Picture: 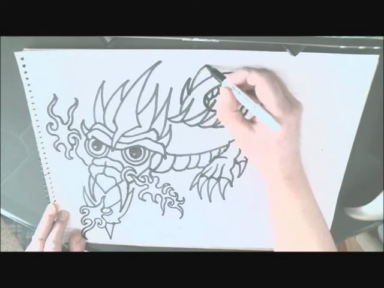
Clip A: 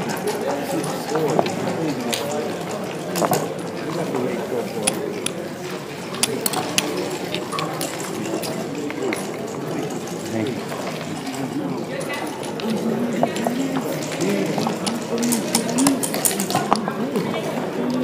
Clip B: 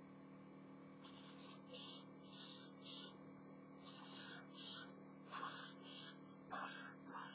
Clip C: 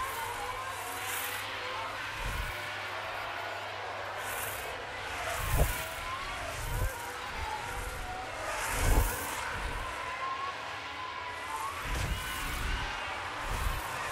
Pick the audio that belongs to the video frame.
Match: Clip B